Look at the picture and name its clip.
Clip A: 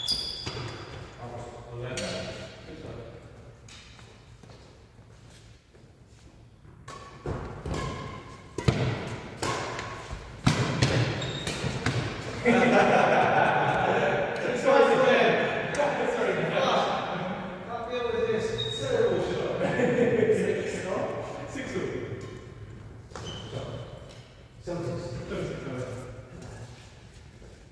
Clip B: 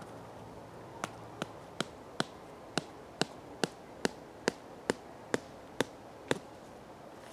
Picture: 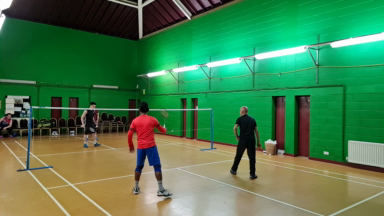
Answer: A